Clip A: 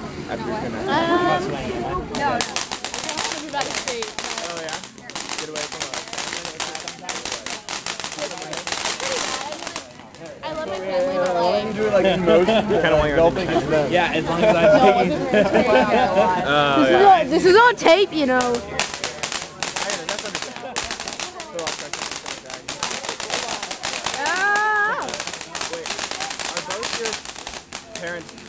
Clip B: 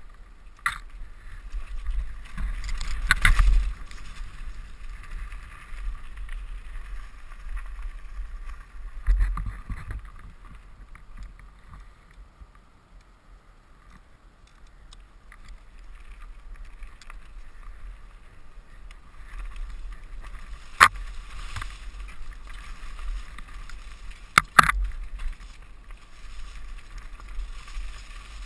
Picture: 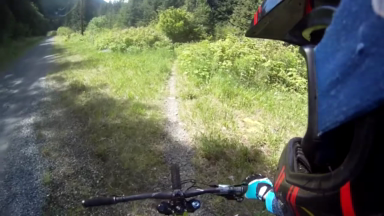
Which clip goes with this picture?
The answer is B